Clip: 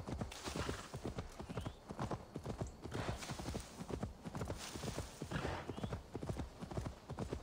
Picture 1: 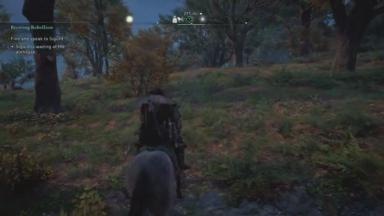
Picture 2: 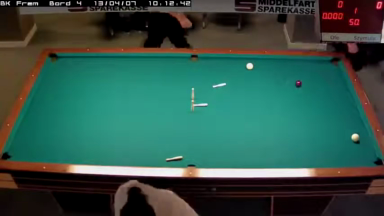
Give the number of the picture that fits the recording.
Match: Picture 1